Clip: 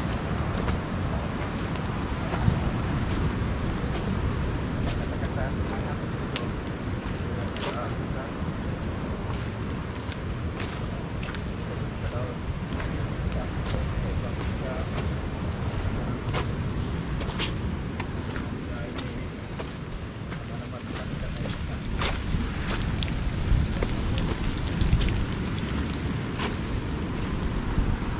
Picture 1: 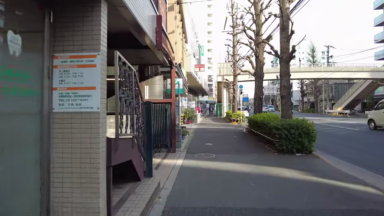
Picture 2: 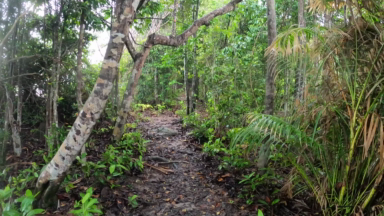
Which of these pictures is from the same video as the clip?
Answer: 2